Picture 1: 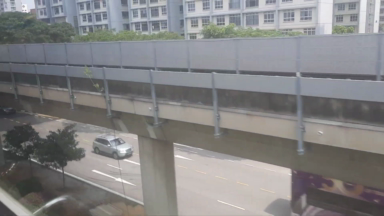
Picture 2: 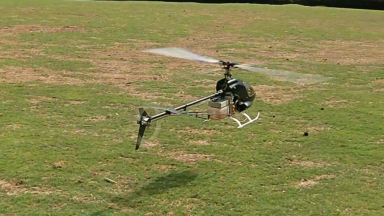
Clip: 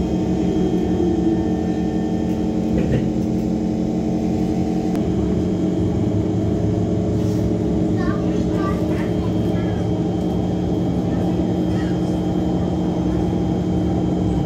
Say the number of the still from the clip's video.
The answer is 1